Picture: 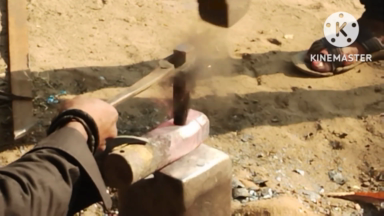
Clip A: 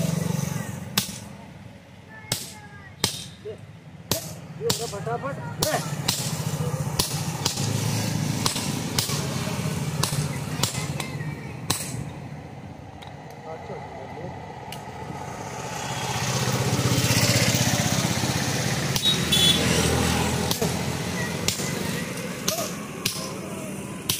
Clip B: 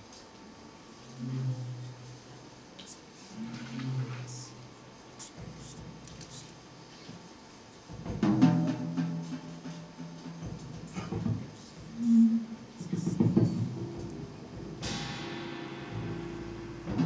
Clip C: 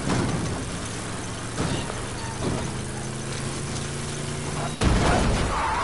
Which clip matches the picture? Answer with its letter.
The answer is A